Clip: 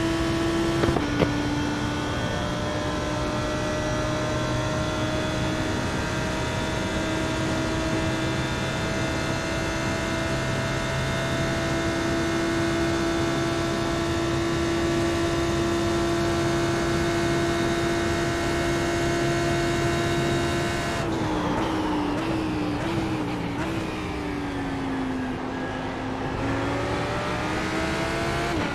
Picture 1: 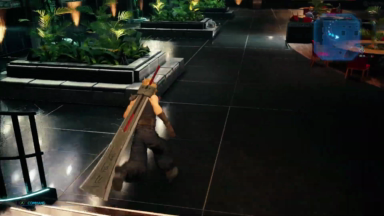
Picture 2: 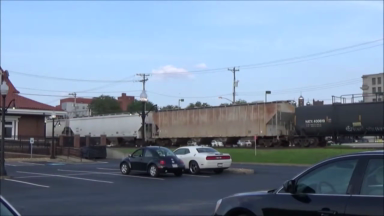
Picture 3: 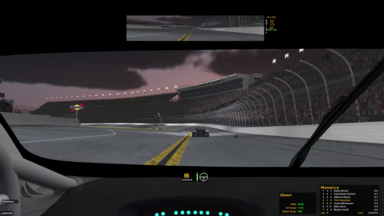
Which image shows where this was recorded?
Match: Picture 3